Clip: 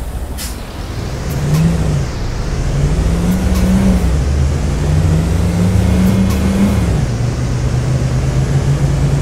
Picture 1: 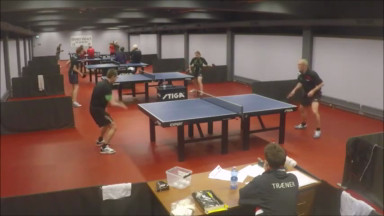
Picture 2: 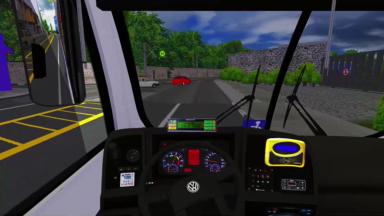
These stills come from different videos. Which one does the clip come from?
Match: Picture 2